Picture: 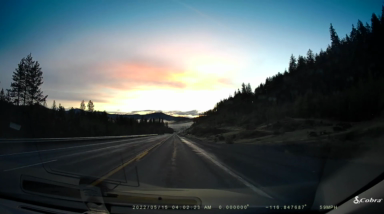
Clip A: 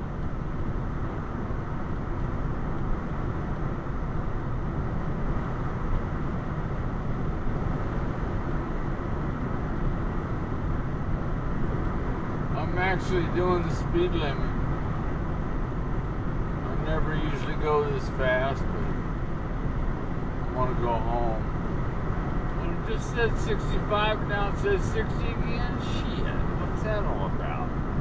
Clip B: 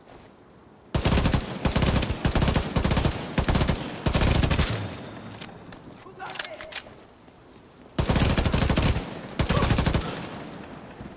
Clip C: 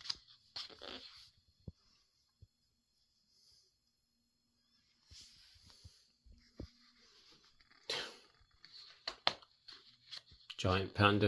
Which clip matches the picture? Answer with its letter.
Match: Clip A